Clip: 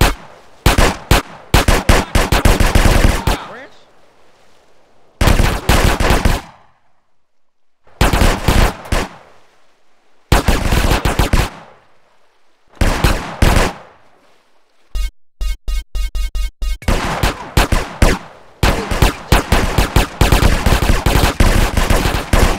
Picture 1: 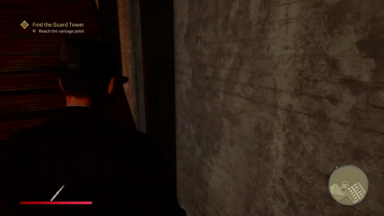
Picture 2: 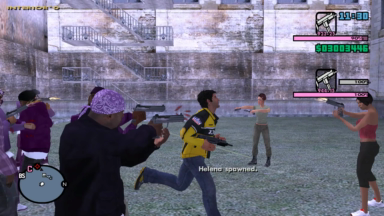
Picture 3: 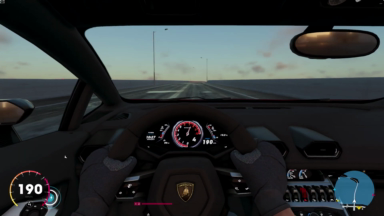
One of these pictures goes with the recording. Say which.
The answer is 2